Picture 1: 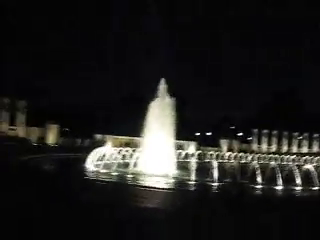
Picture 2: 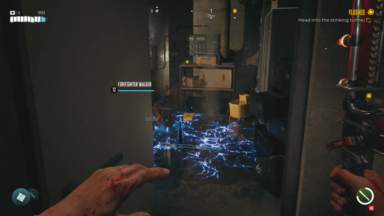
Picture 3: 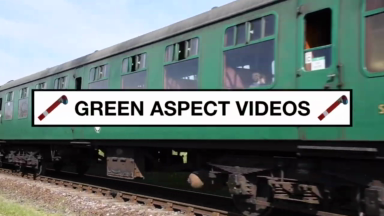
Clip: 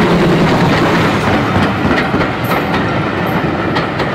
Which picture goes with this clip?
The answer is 3